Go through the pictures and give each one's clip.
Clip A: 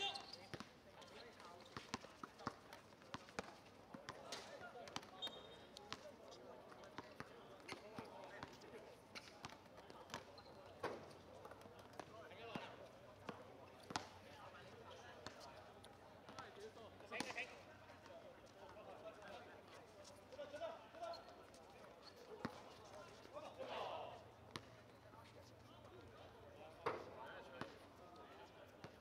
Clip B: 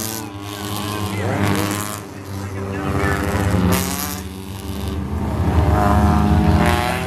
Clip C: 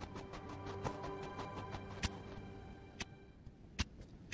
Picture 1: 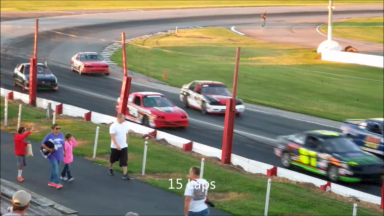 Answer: B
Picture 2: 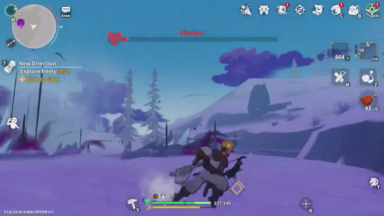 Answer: C